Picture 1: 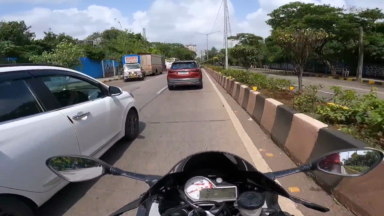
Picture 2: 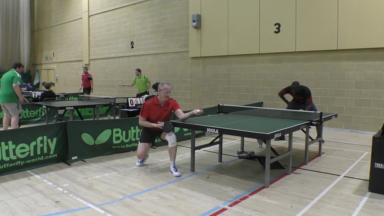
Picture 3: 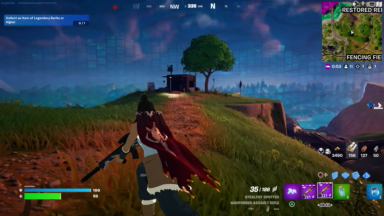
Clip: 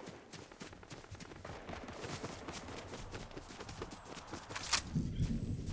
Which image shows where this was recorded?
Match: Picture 3